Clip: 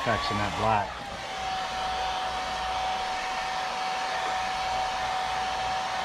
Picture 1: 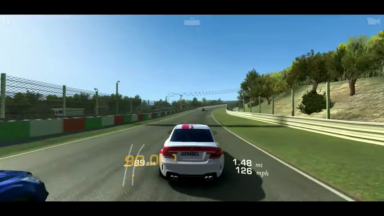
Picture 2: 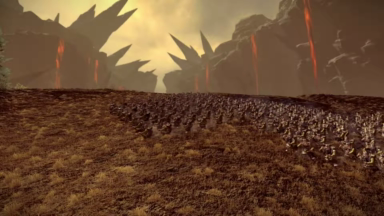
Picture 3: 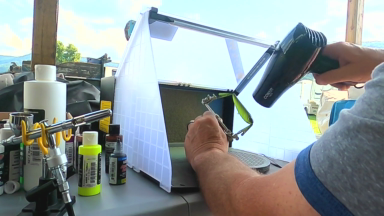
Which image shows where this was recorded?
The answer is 3